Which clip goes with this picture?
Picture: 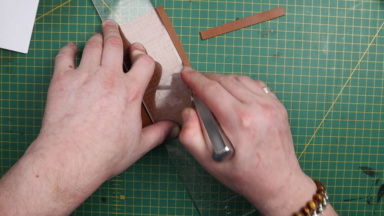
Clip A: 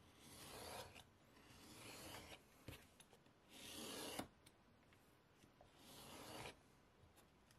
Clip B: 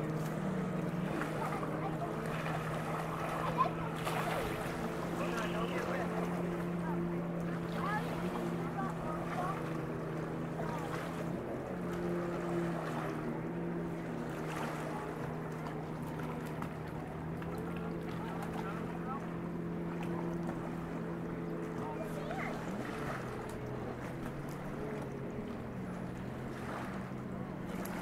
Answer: A